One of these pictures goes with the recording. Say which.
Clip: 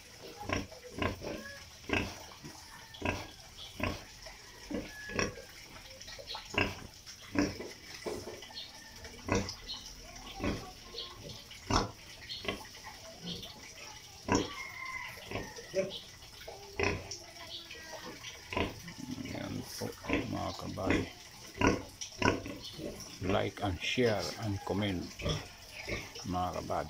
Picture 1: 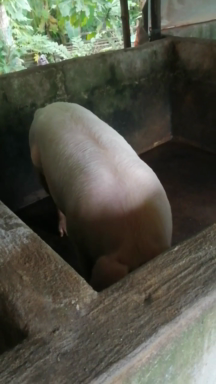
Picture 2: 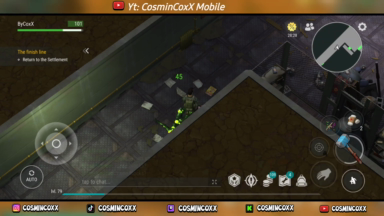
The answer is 1